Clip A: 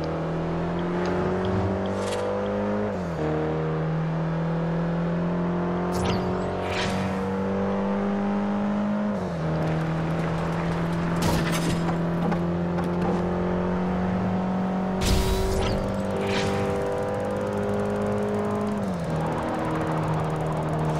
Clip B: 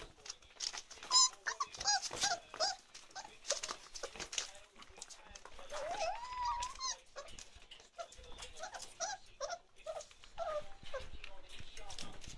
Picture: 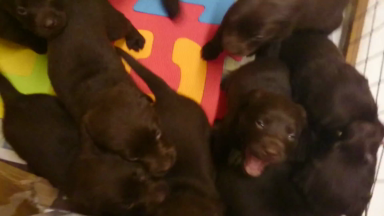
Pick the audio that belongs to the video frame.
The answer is B